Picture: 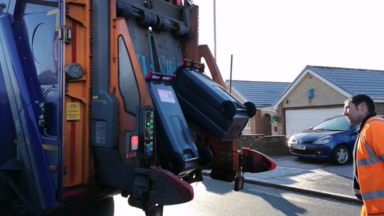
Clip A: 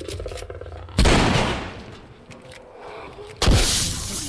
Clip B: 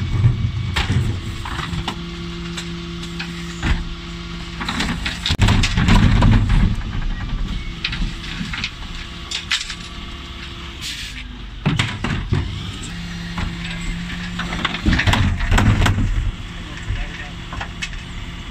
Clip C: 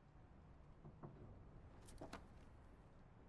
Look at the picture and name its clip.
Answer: B